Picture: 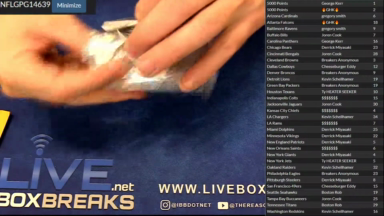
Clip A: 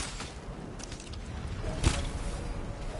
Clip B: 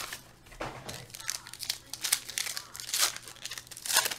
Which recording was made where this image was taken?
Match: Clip B